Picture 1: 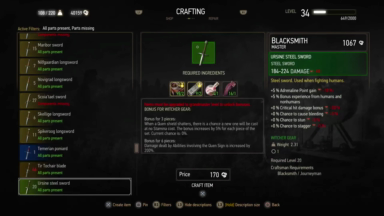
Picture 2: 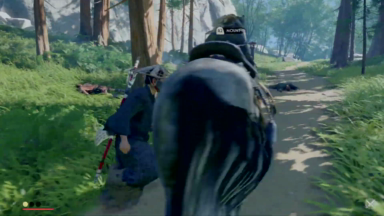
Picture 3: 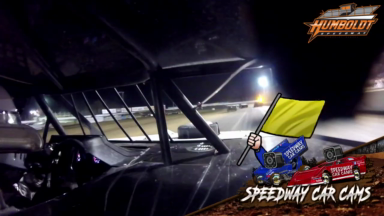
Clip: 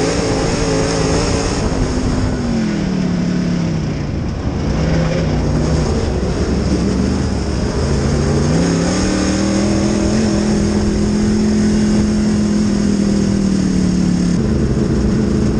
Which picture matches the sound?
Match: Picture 3